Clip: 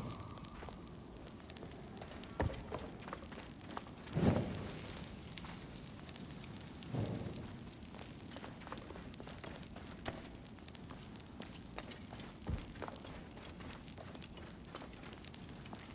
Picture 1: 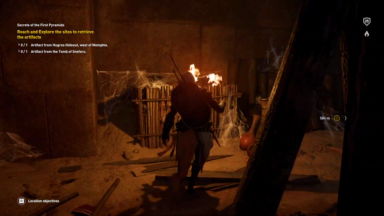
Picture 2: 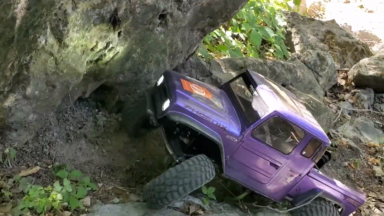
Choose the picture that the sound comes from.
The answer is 1